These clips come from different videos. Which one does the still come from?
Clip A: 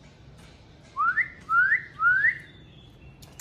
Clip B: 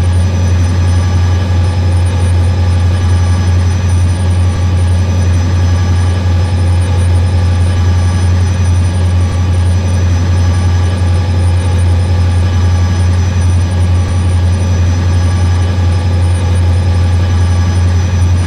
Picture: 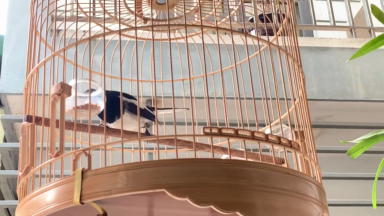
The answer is A